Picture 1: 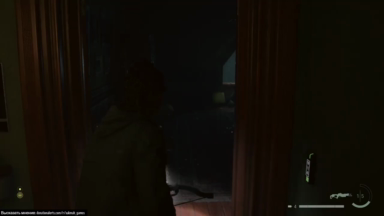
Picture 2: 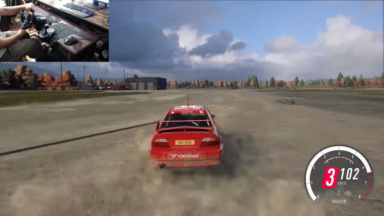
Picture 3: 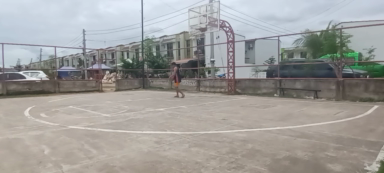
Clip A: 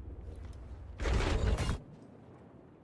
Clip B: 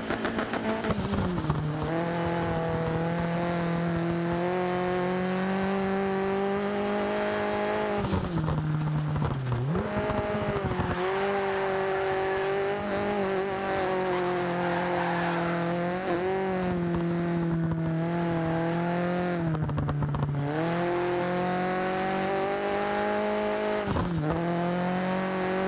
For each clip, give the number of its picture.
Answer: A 1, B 2